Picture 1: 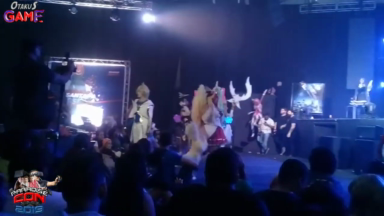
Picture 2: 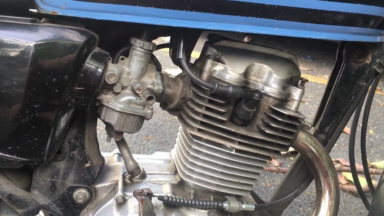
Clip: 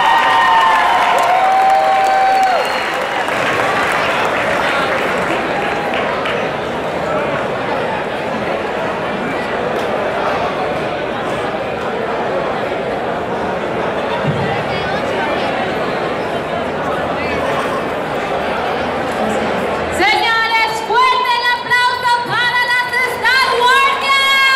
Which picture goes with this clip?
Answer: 1